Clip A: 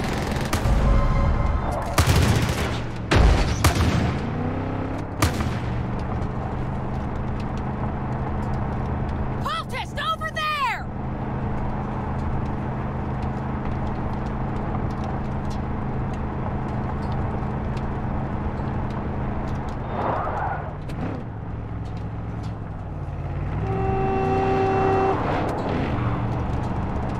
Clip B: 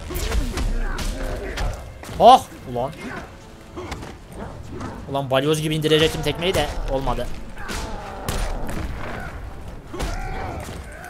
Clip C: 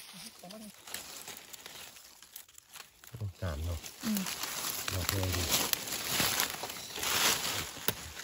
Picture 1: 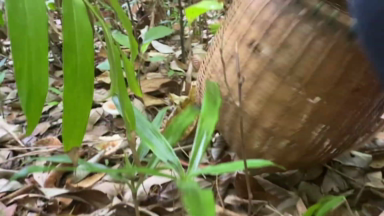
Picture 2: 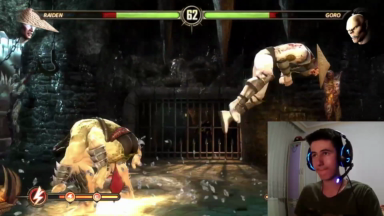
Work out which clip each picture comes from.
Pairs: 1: C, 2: B